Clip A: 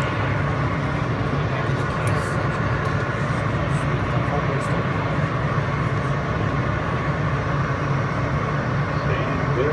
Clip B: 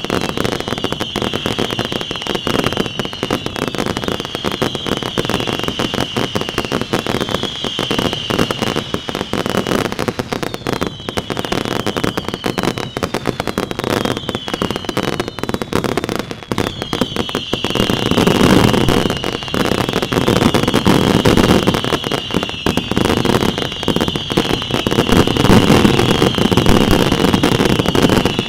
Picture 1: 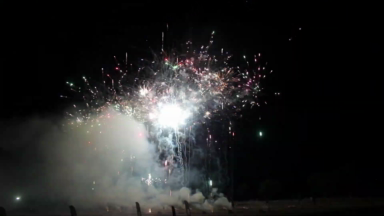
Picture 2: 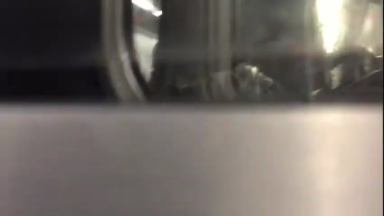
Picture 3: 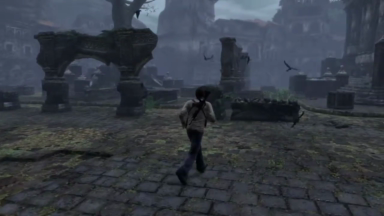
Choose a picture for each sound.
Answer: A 2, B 1